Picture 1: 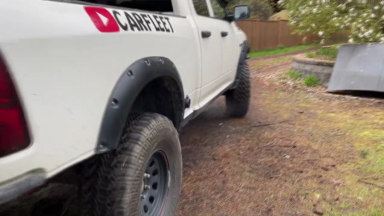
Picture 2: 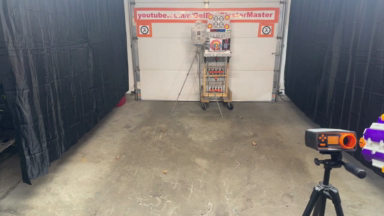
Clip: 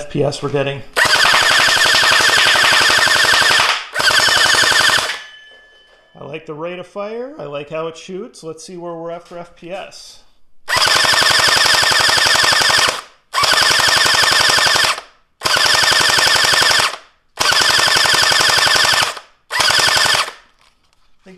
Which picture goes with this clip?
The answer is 2